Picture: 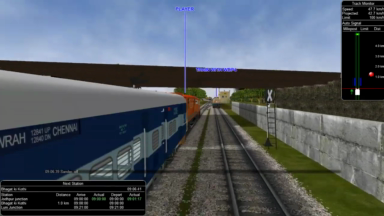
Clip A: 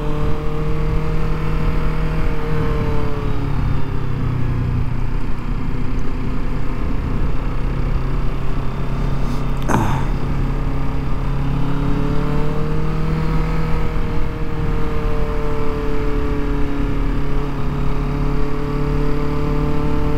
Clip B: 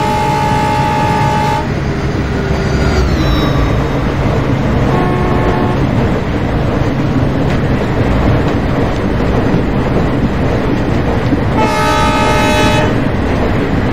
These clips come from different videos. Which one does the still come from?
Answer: B